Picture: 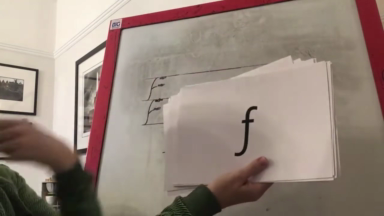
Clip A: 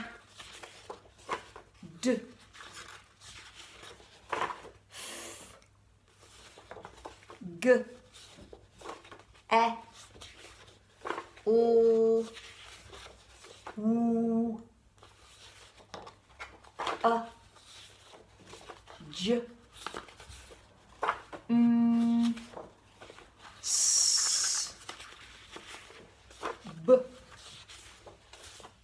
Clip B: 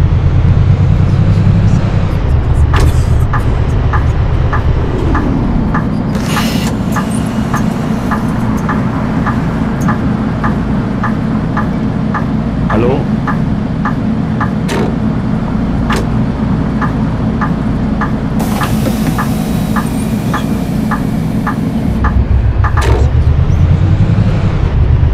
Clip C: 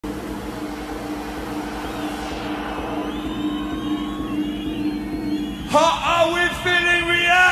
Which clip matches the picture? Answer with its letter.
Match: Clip A